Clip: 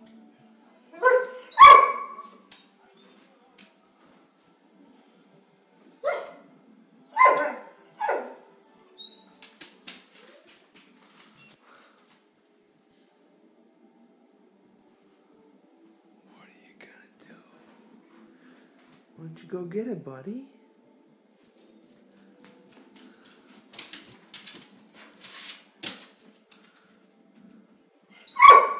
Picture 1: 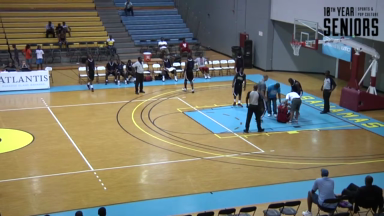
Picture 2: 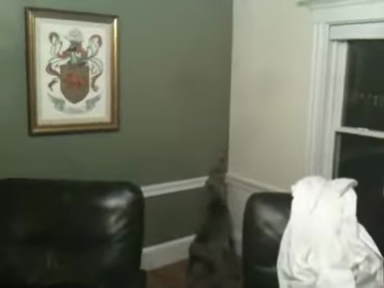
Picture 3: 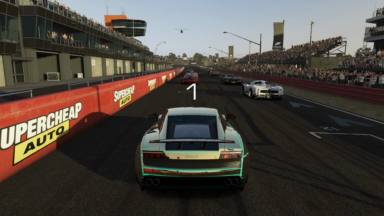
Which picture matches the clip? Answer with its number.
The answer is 2